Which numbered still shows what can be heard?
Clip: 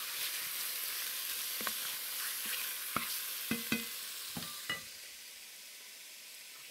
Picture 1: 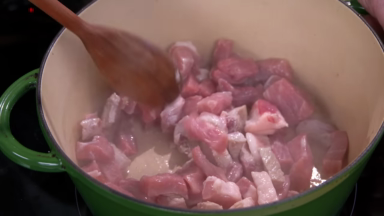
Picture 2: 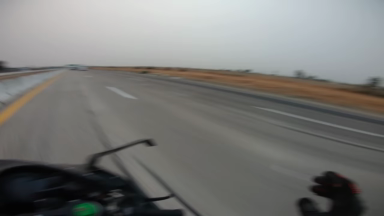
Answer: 1